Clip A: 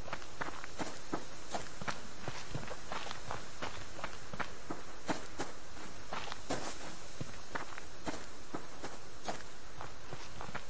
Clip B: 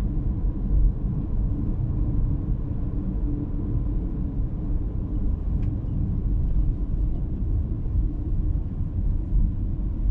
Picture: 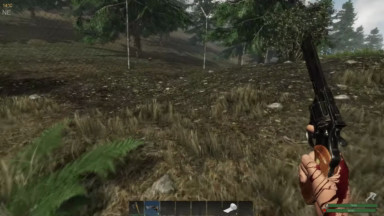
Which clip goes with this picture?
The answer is A